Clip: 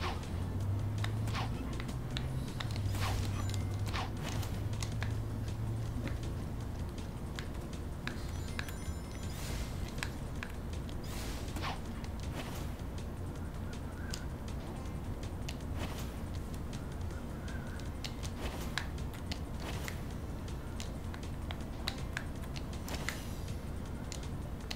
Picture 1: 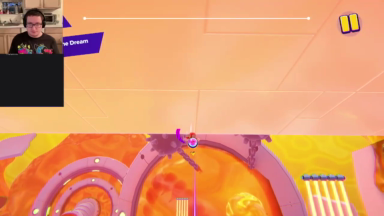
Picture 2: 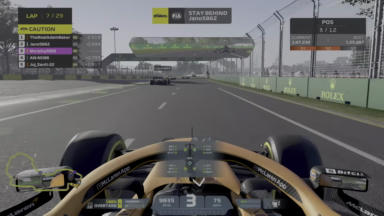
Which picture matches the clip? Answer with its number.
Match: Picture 1